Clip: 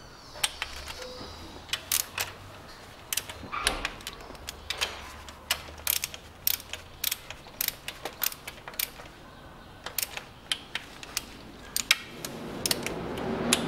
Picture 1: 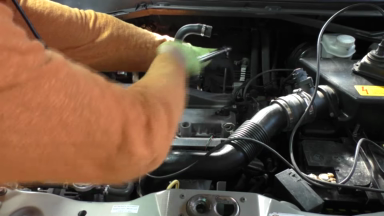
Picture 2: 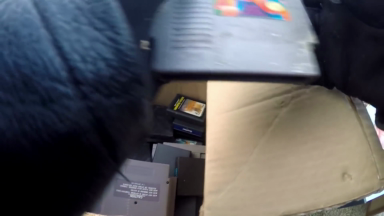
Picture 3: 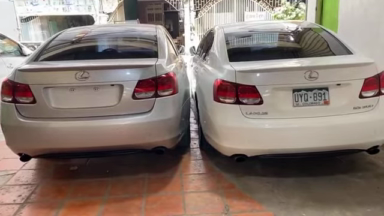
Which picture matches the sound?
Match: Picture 1